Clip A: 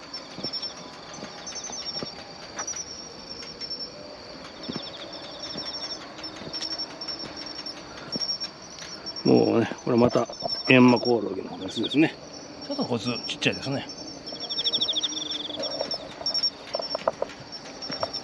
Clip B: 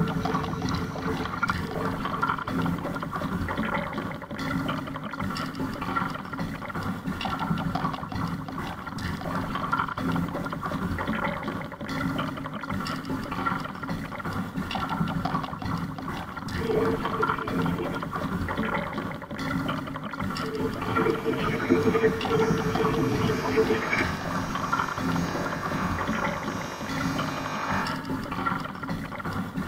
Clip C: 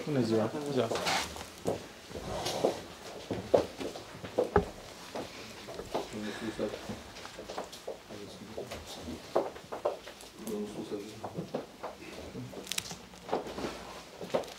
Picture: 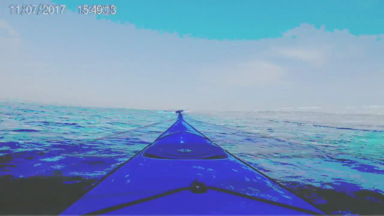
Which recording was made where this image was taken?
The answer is B